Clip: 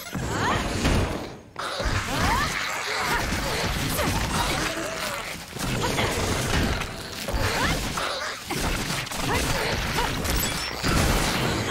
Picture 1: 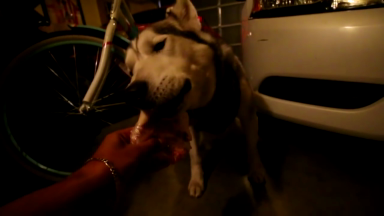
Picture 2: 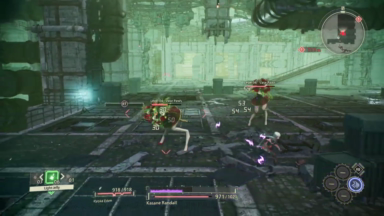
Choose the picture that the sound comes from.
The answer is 2